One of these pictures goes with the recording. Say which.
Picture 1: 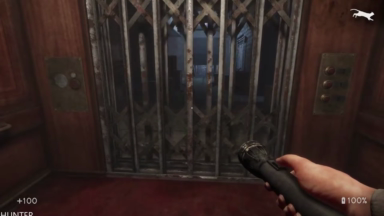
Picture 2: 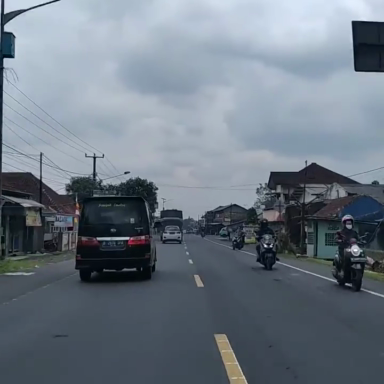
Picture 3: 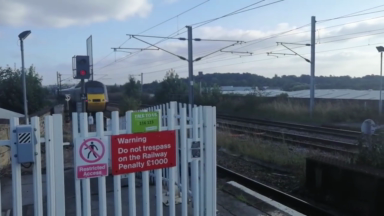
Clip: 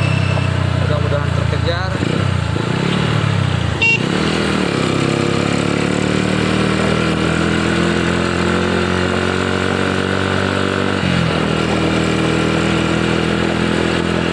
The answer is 2